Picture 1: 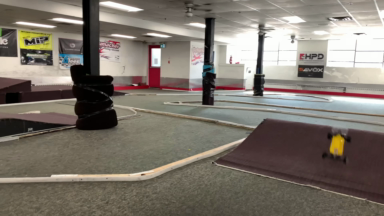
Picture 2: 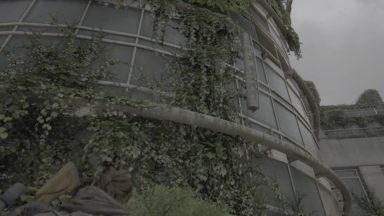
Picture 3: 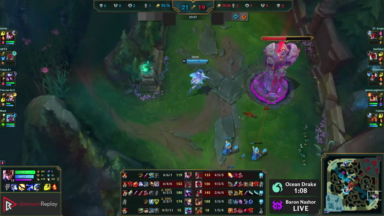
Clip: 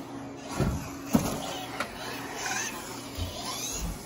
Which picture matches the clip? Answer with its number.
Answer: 1